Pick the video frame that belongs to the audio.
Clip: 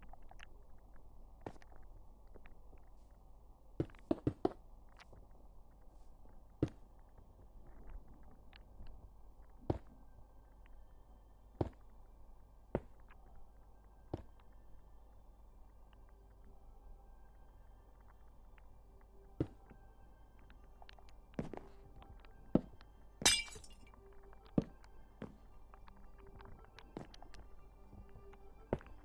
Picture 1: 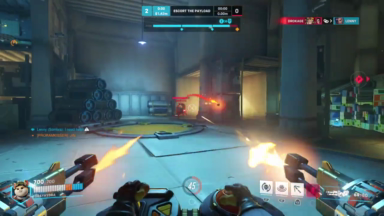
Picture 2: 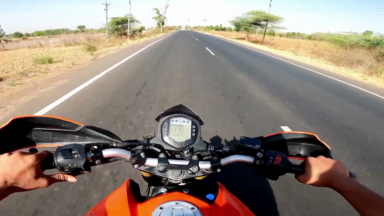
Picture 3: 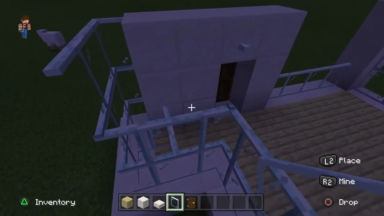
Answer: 3